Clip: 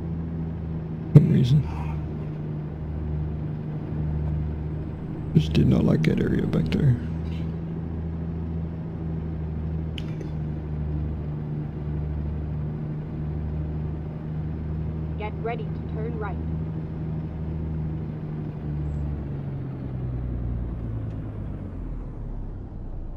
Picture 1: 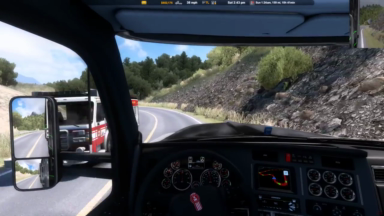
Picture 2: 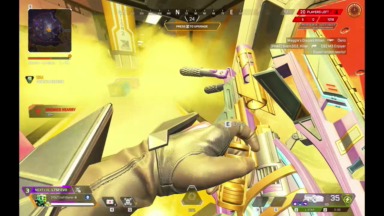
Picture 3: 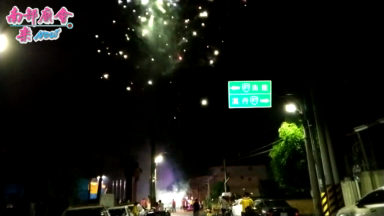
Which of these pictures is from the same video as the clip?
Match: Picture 1